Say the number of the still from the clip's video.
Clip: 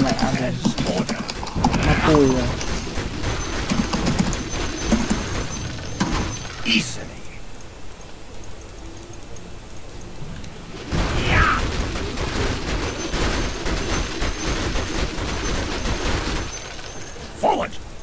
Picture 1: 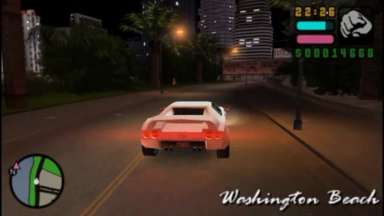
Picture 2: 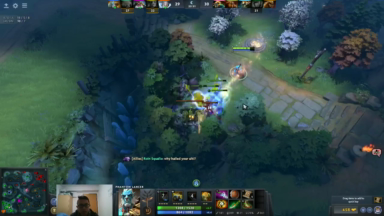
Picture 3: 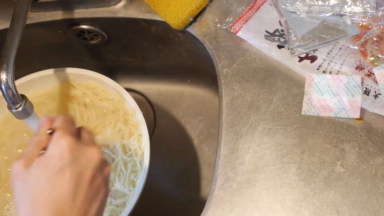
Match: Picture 2